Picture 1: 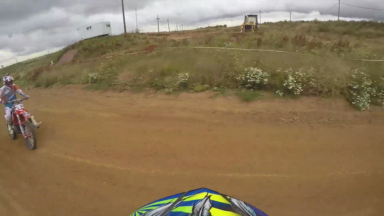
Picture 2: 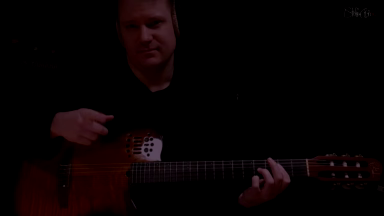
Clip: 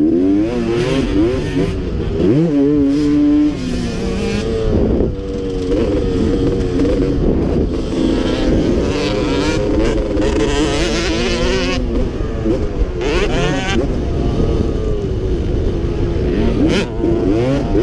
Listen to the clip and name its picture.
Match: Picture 1